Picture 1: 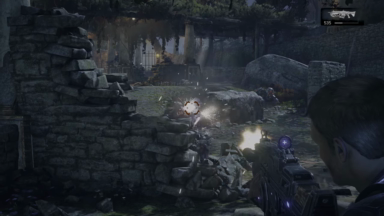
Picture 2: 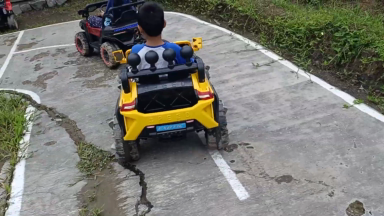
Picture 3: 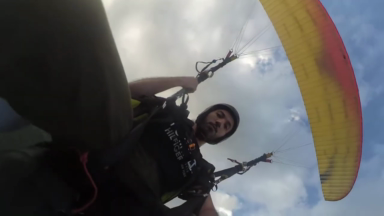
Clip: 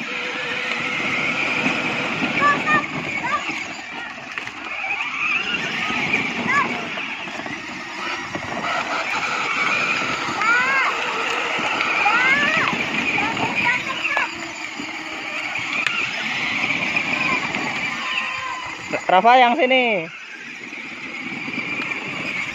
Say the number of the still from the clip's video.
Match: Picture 2